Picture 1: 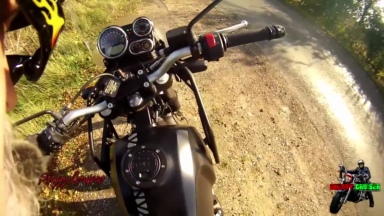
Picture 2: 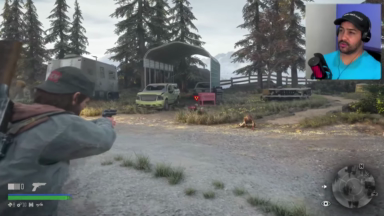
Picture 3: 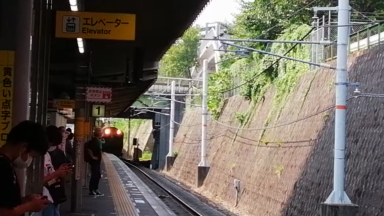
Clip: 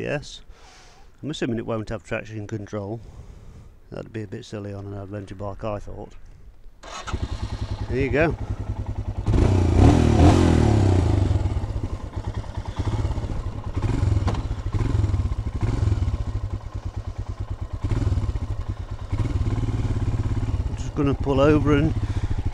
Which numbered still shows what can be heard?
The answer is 1